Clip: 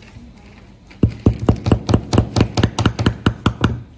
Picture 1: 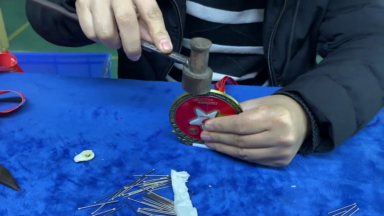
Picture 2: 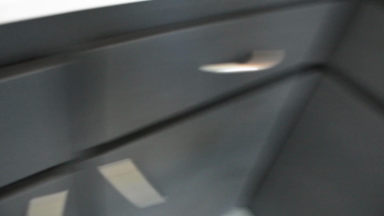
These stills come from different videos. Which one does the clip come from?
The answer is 1